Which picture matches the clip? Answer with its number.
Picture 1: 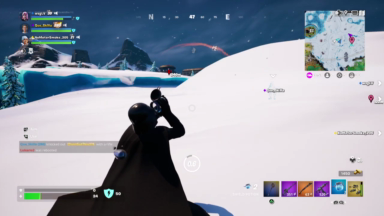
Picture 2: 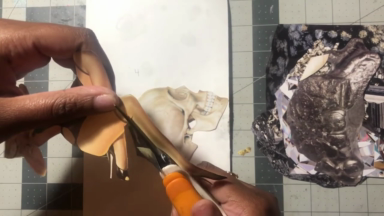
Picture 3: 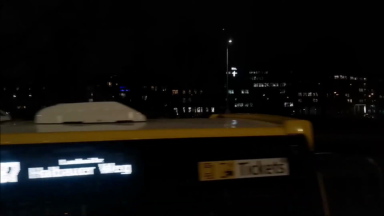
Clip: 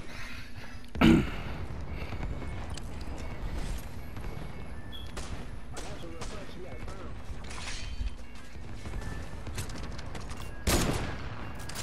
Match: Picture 1